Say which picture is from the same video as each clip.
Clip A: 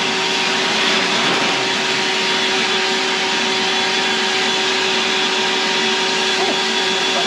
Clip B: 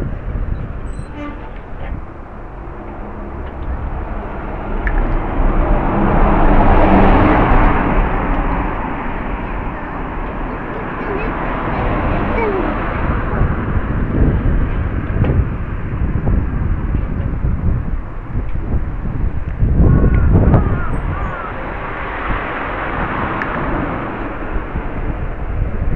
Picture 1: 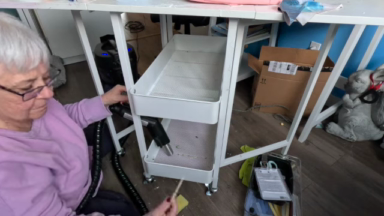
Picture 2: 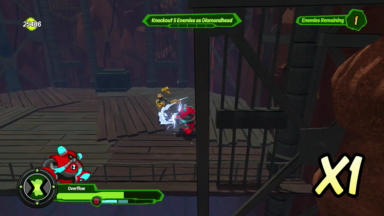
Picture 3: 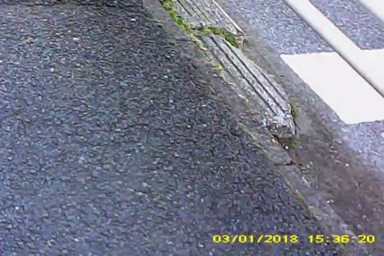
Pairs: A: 1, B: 3